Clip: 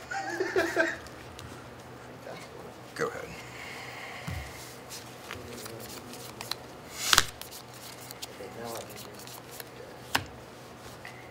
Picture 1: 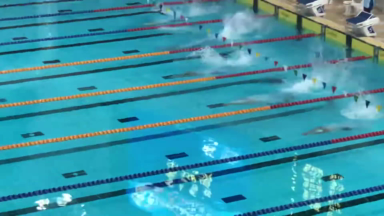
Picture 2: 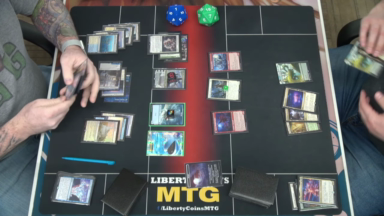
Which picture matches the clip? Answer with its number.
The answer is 2